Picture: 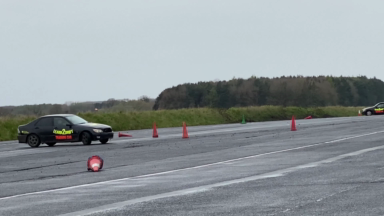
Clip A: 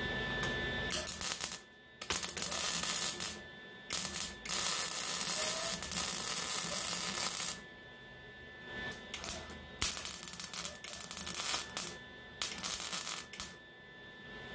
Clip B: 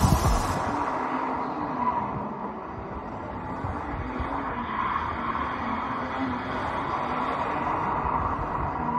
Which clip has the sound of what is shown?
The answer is B